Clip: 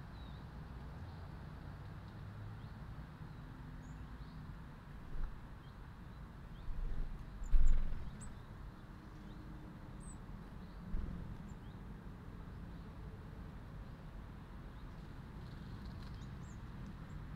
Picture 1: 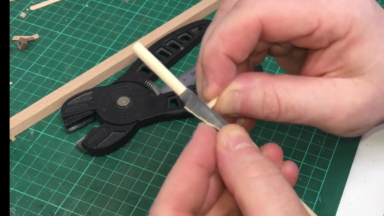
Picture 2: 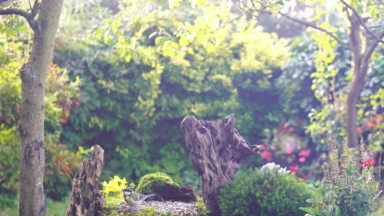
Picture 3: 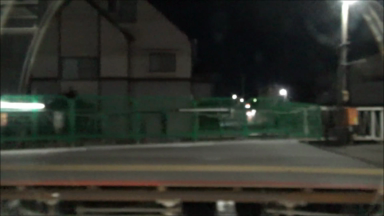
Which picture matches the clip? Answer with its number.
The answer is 2